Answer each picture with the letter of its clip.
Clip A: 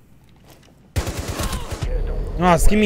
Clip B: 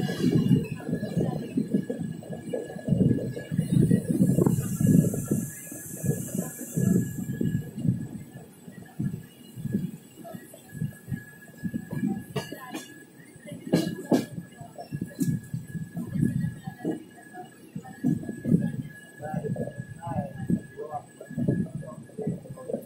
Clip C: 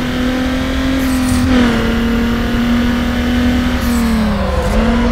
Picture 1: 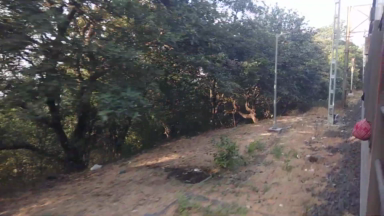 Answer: B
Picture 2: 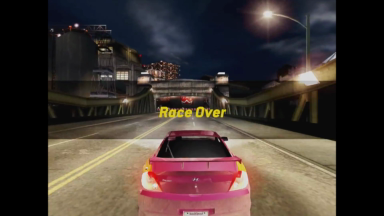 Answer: C